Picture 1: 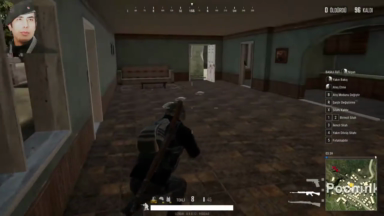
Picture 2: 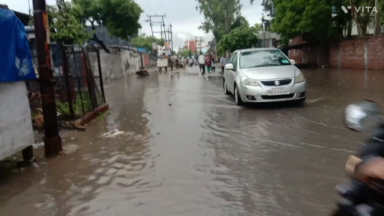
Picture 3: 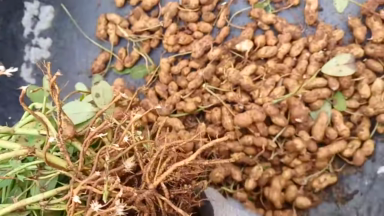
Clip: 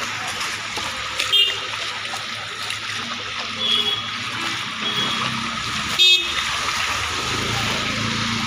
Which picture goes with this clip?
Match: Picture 2